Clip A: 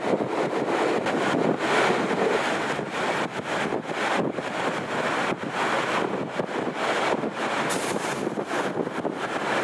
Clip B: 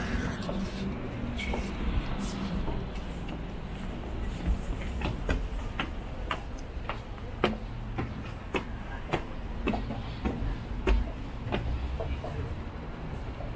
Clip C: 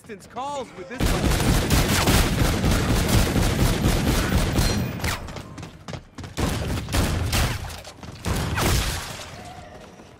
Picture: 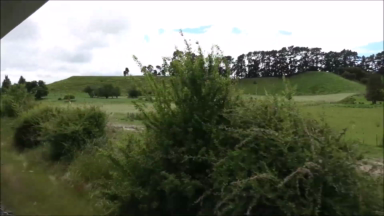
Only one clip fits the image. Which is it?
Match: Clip A